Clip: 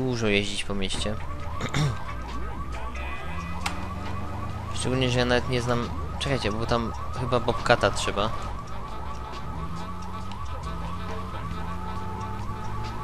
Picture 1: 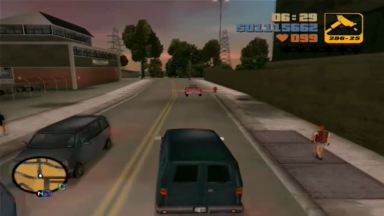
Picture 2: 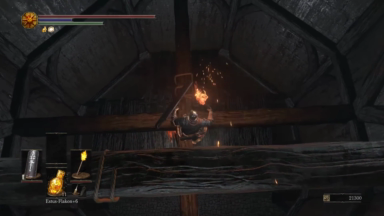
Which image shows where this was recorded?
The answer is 1